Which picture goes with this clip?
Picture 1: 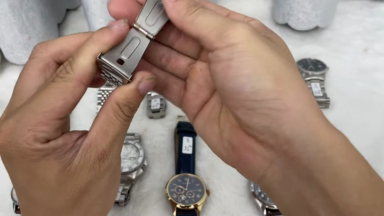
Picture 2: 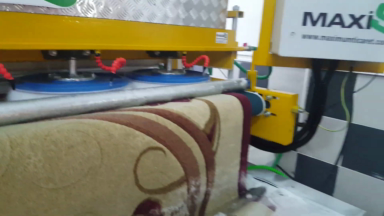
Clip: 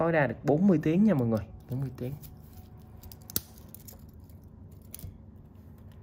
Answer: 1